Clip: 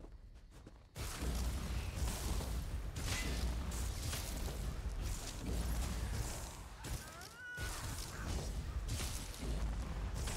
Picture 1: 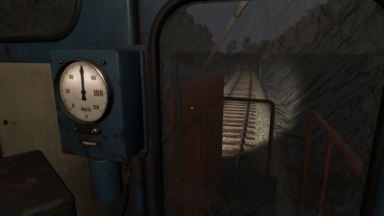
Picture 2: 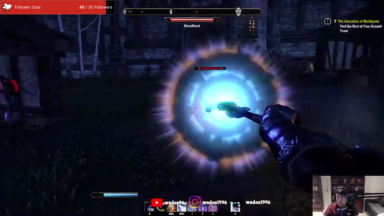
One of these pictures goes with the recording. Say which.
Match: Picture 2